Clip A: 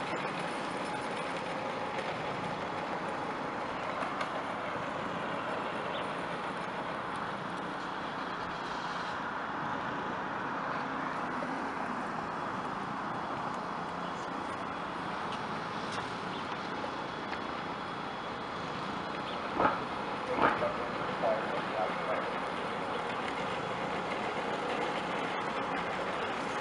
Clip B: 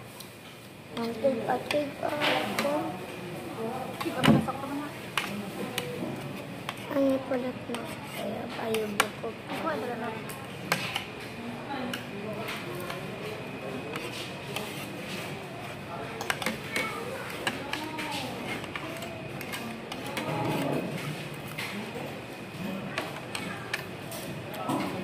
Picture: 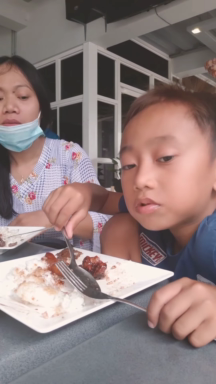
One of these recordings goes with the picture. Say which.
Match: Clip B